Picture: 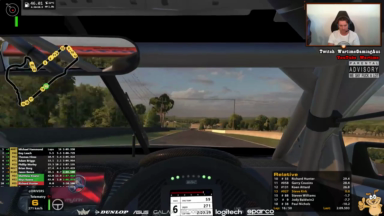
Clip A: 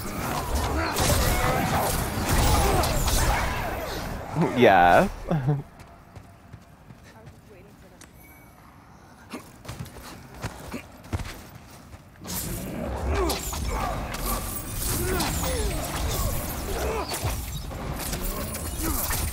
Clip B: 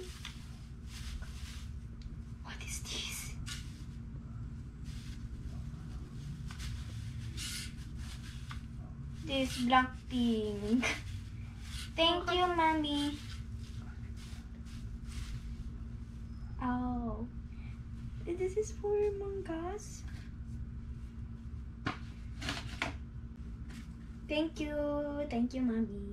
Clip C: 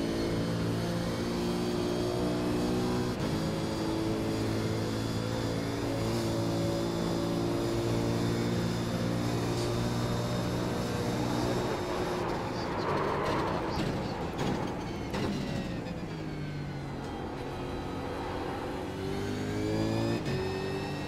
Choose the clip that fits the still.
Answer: C